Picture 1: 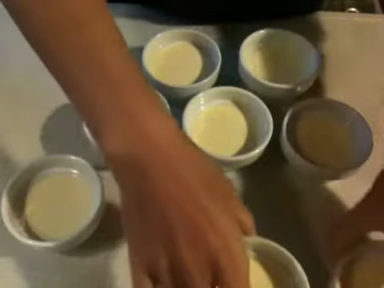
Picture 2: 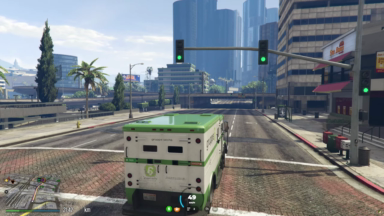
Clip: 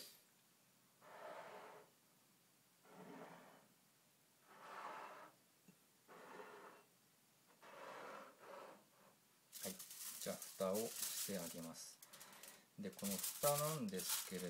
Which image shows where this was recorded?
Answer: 1